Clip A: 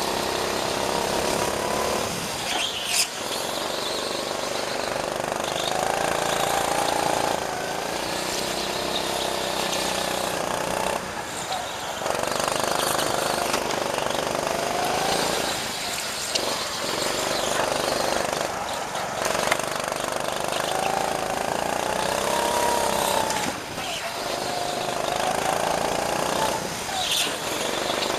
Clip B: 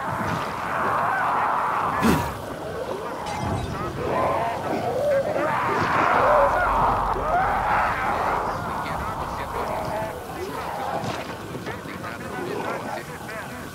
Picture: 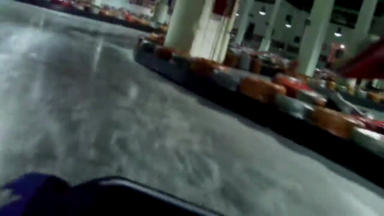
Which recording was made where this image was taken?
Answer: A